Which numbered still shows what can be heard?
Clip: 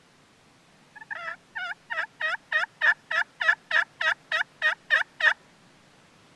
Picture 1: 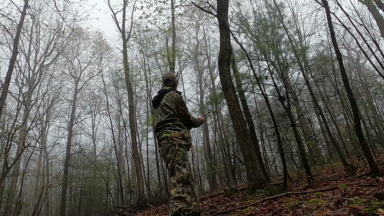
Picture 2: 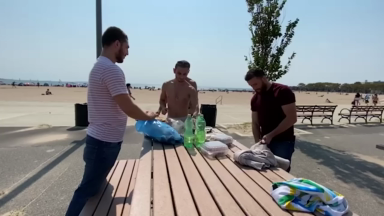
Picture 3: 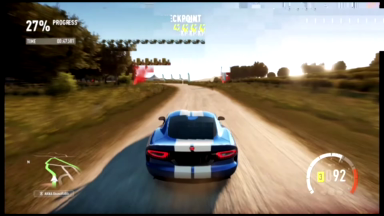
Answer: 1